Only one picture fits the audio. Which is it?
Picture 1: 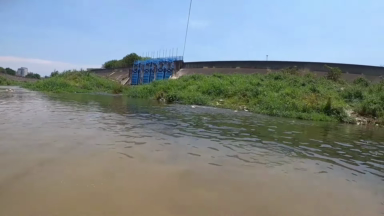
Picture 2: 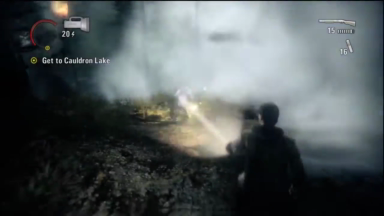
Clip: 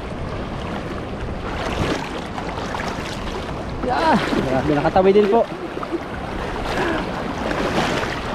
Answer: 1